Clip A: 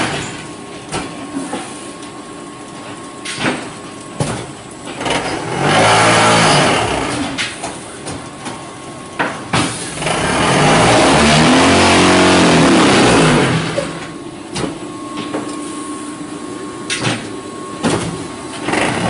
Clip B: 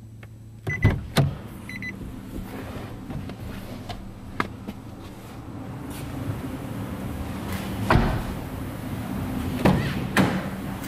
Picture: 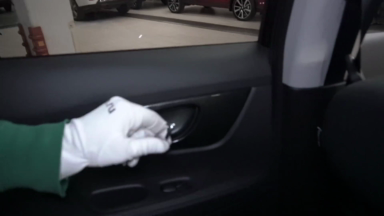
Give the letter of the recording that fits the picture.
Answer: B